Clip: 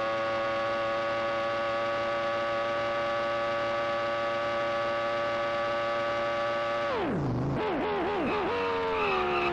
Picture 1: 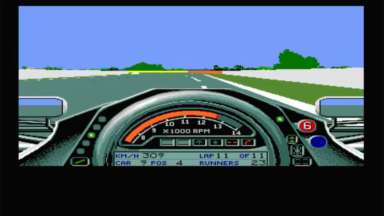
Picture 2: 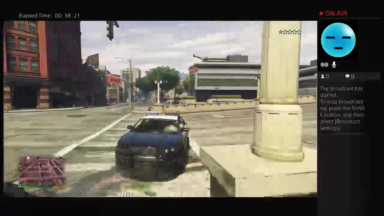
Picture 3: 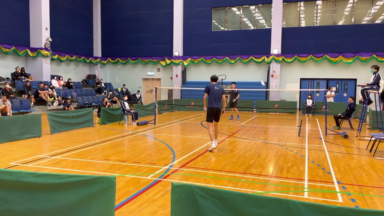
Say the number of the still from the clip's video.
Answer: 1